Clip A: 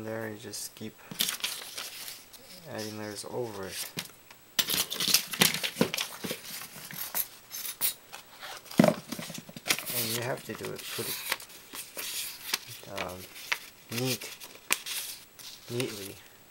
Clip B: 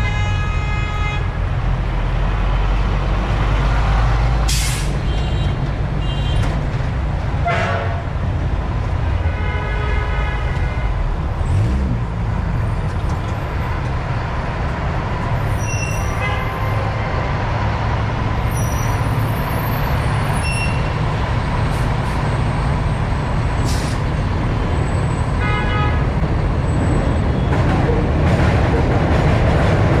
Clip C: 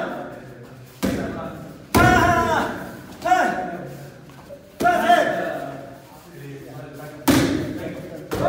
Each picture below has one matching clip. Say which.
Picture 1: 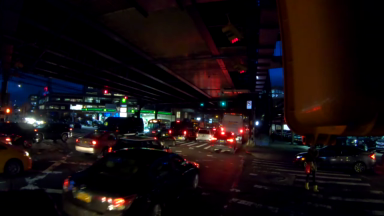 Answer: B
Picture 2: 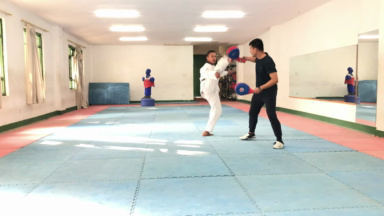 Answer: C